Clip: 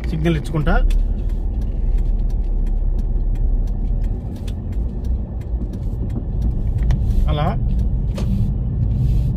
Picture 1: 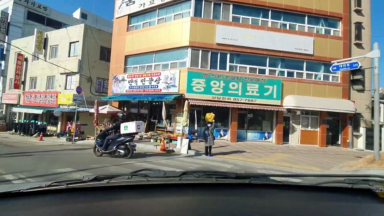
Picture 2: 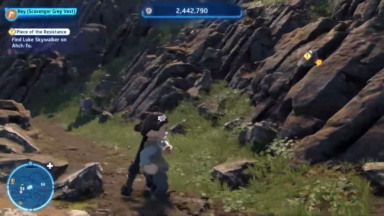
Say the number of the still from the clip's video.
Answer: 1